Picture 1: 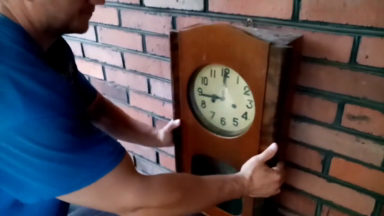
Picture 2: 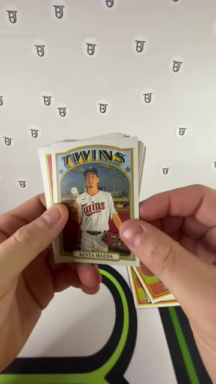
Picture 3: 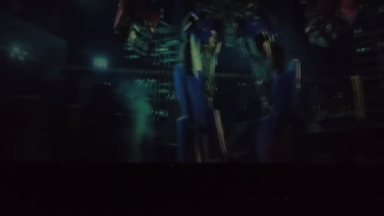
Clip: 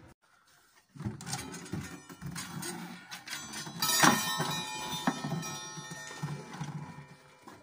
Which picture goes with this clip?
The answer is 1